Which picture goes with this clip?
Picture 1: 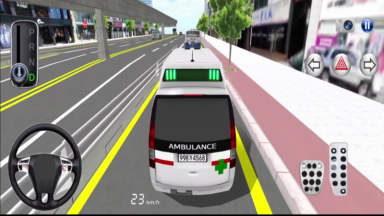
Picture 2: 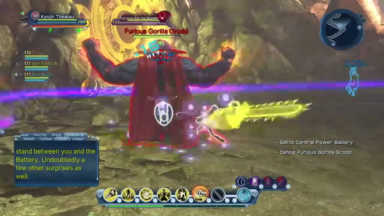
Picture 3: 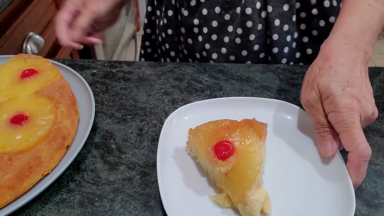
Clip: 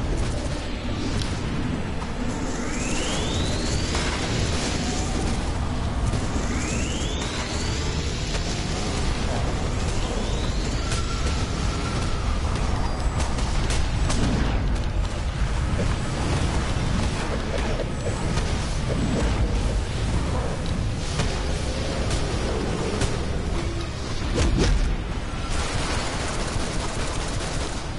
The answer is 2